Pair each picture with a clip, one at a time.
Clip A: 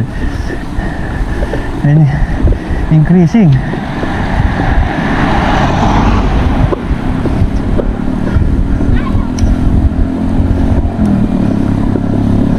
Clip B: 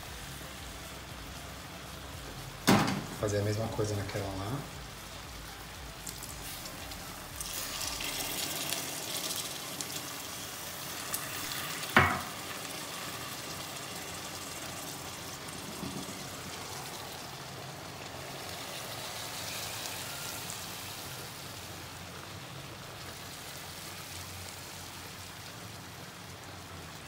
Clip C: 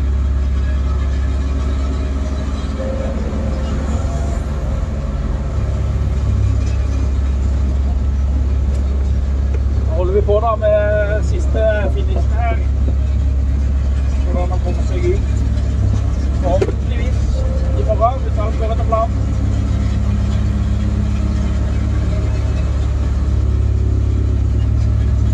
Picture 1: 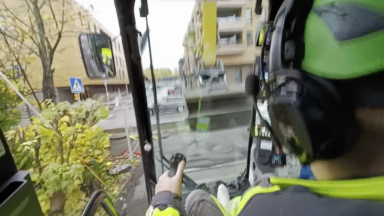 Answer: C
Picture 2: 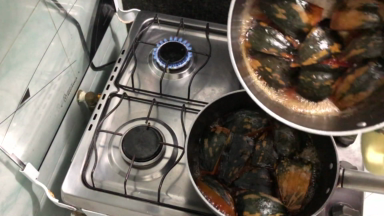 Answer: B